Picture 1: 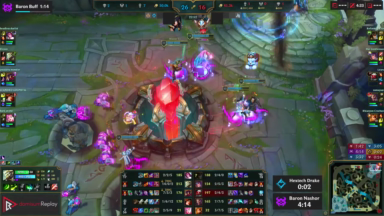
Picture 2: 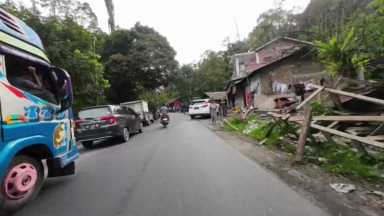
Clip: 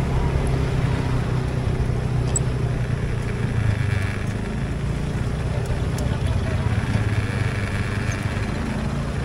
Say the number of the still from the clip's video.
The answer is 2